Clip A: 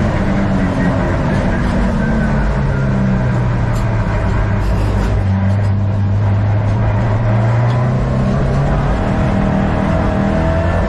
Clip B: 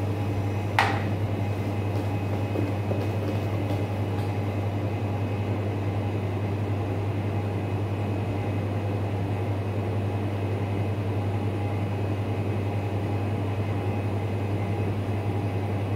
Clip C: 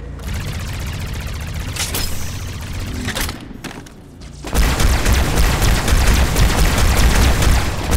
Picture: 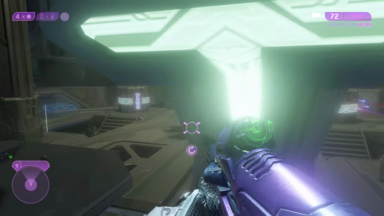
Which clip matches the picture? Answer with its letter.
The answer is C